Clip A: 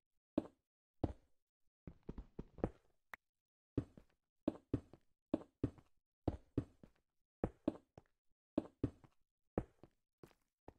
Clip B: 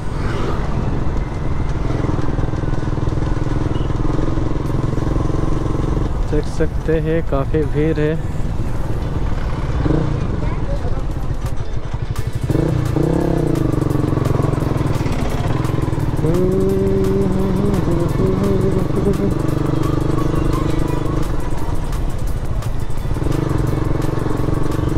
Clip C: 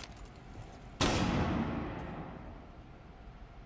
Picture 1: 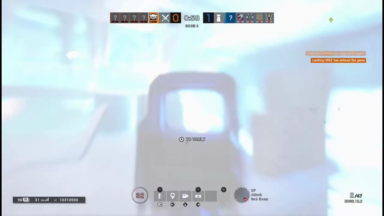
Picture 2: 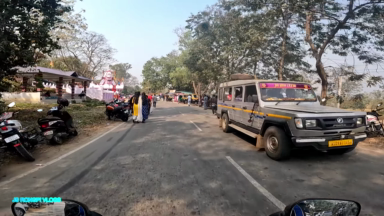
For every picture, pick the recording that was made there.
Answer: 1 C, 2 B